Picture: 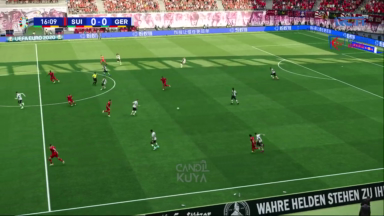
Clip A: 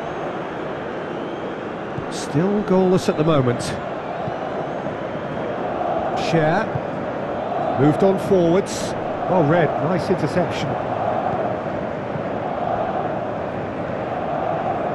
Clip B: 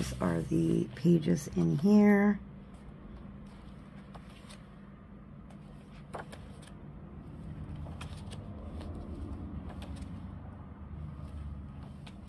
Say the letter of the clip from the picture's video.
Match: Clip A